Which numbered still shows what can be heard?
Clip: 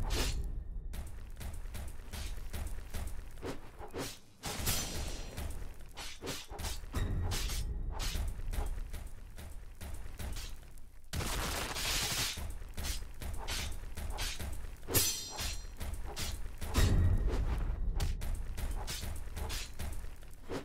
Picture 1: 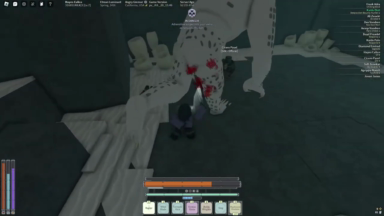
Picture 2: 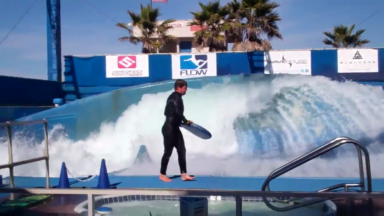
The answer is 1